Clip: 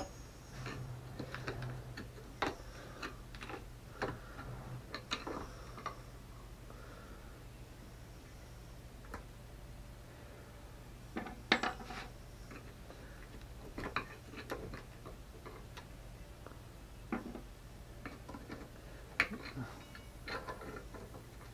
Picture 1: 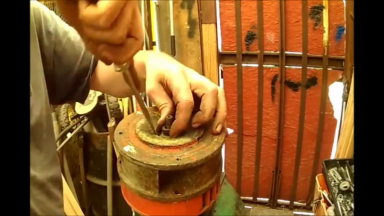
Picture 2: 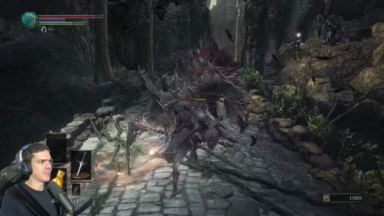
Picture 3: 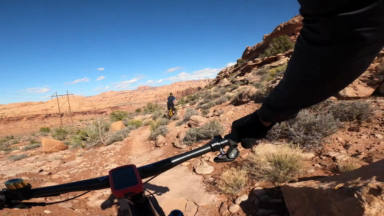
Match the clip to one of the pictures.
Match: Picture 1